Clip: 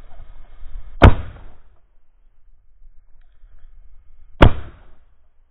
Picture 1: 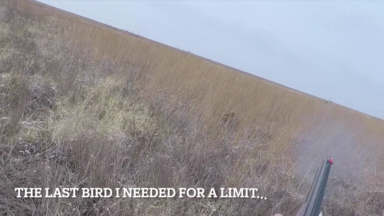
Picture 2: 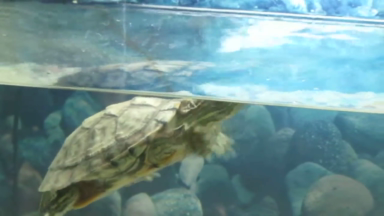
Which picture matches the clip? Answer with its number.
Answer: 1